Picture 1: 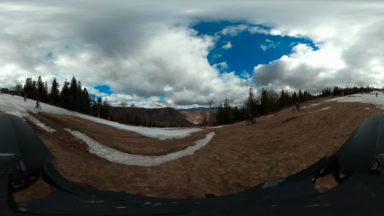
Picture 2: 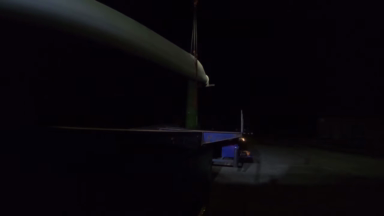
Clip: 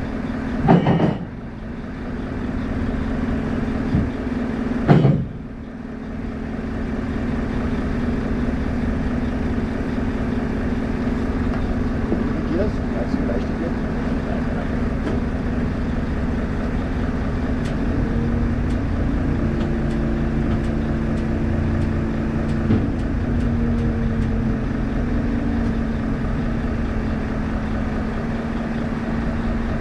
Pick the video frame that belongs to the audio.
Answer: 2